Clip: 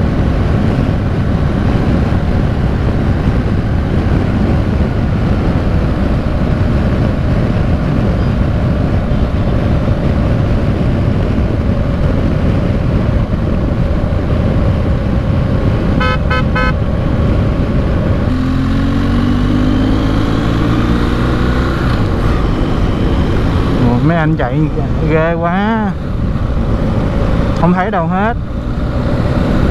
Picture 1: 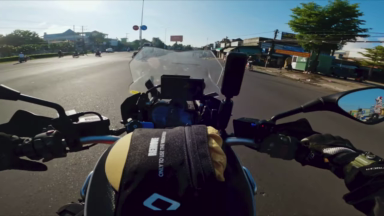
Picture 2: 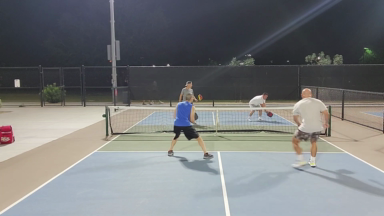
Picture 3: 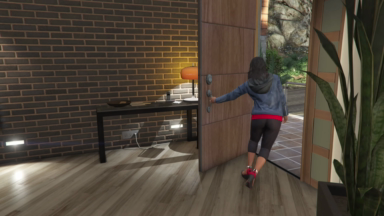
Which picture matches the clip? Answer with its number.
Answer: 1